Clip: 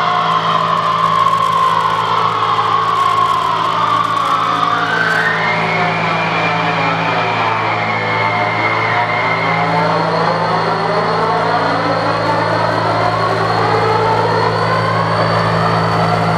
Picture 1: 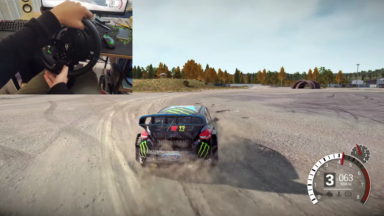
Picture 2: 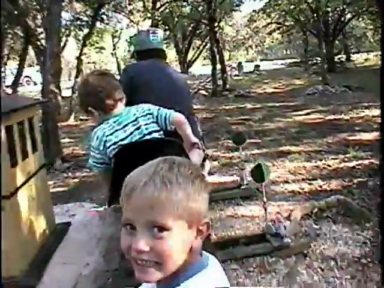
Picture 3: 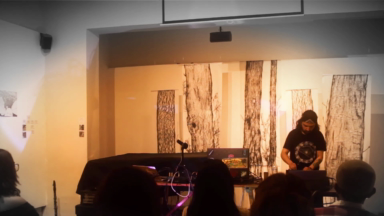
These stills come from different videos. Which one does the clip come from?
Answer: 3